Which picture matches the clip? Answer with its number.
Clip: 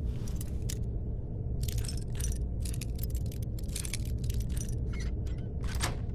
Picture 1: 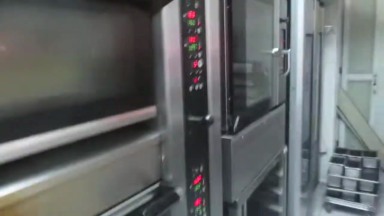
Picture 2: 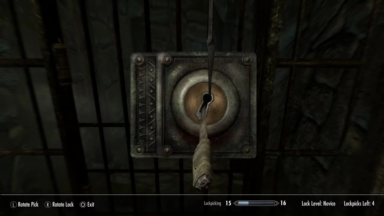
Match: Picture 2